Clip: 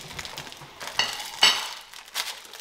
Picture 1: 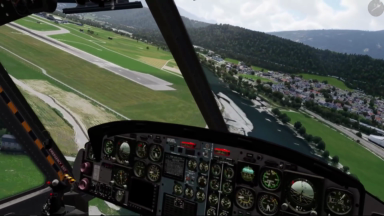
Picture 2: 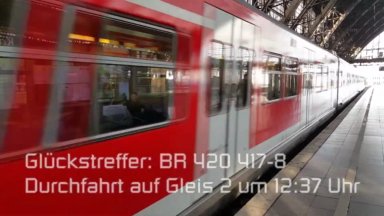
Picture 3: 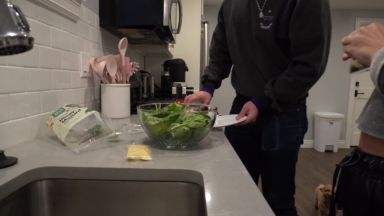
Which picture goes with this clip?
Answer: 3